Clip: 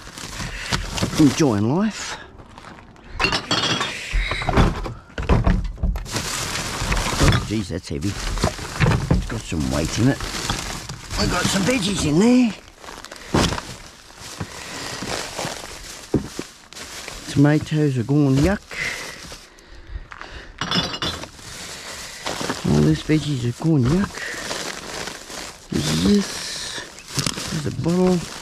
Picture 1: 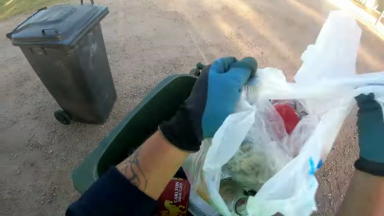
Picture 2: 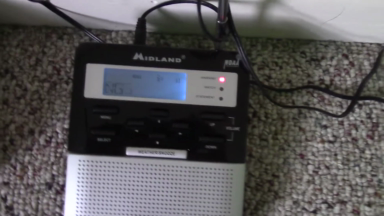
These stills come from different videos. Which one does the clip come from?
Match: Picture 1